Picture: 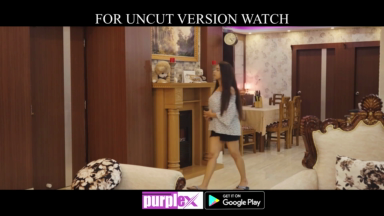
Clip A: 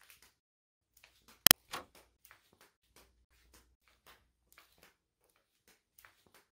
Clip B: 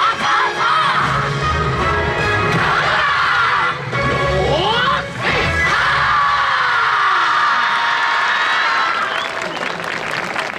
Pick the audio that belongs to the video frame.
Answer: A